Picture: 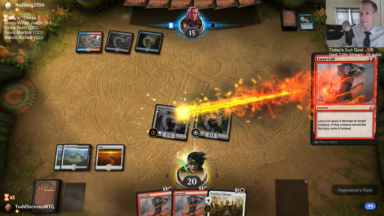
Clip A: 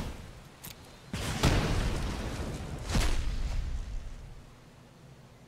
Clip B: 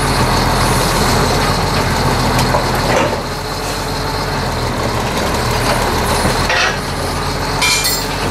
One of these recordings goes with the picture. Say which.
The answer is A